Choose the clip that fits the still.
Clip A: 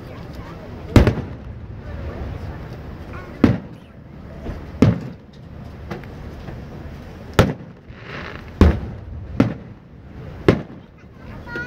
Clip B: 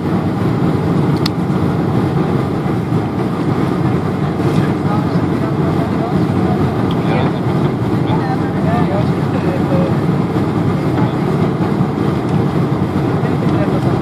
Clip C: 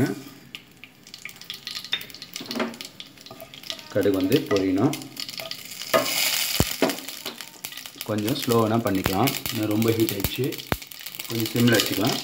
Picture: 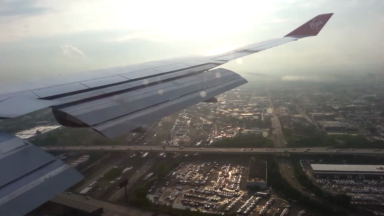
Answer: B